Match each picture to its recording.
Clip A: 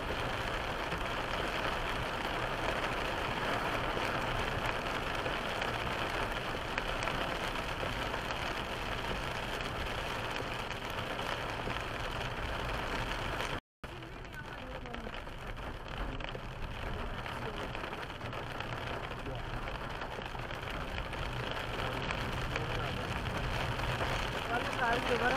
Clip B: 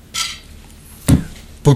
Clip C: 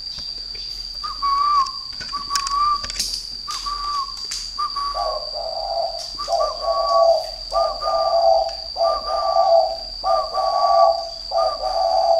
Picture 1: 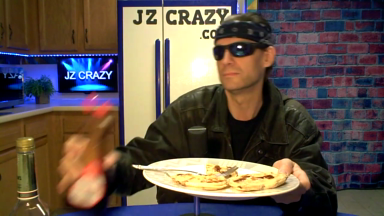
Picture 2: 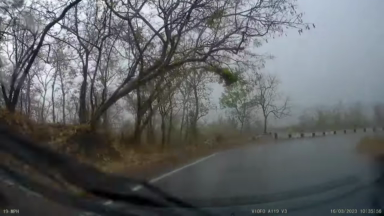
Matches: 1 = B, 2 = A